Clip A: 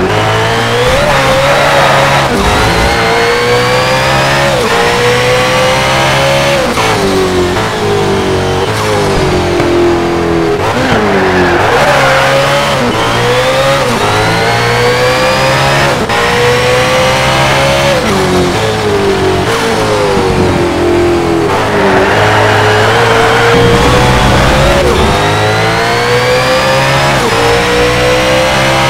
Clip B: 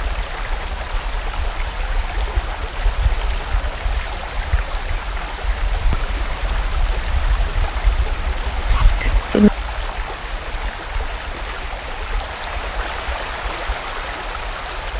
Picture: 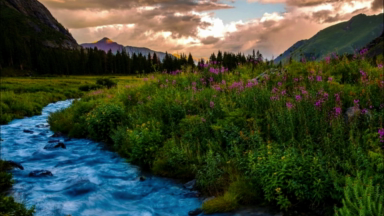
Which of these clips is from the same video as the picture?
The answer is B